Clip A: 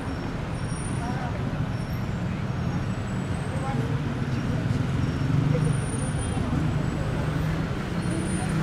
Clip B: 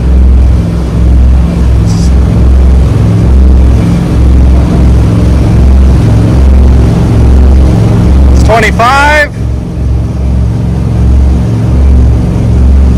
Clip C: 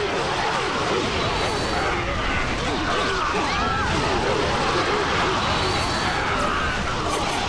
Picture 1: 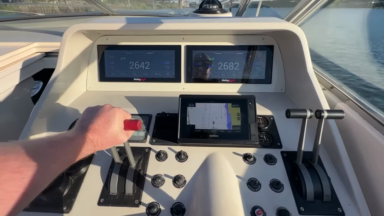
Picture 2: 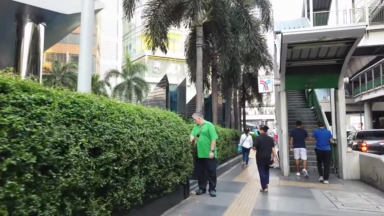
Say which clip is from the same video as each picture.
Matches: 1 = B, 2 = A